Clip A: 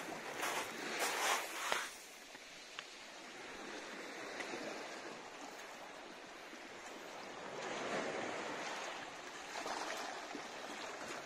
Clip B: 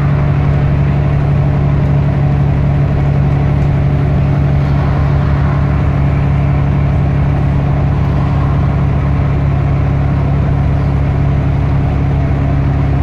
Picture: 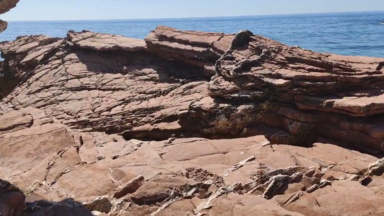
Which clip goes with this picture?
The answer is A